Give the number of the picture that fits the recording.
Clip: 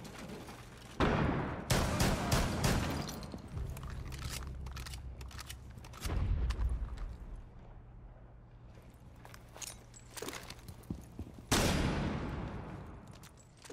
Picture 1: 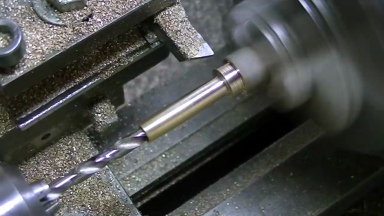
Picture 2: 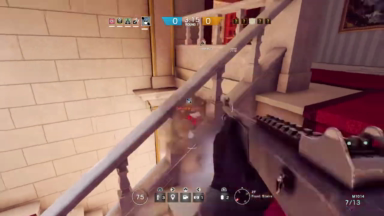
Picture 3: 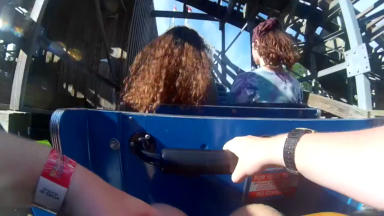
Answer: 2